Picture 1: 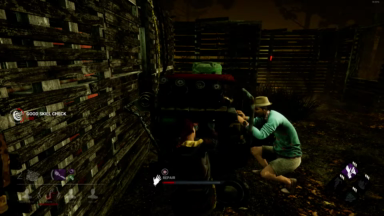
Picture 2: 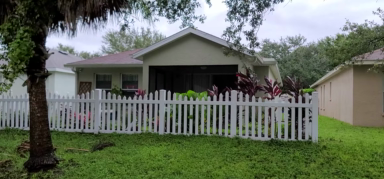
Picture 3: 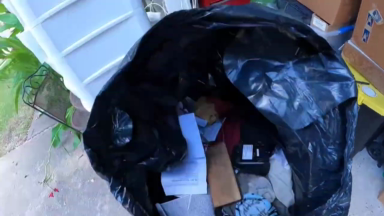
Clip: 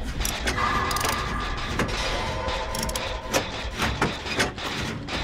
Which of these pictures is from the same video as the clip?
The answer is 1